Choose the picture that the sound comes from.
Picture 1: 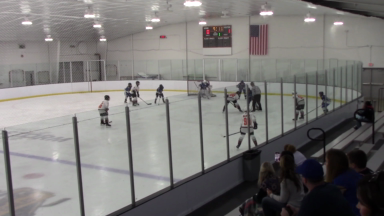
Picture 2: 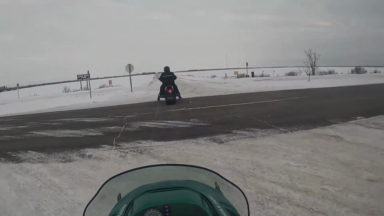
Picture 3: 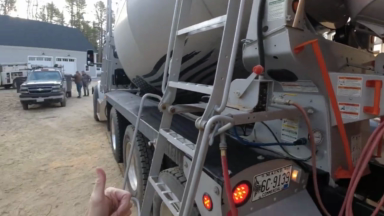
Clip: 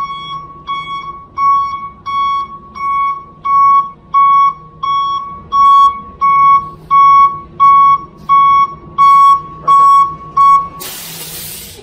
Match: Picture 3